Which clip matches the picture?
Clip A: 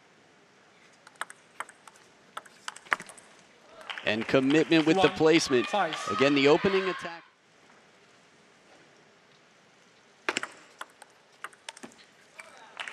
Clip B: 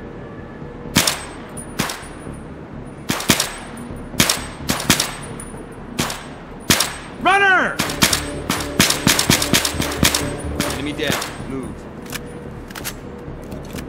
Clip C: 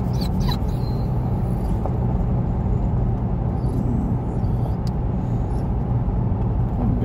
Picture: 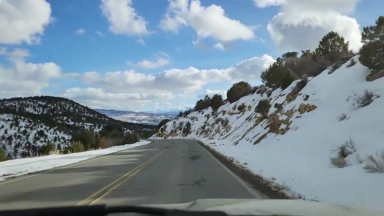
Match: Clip C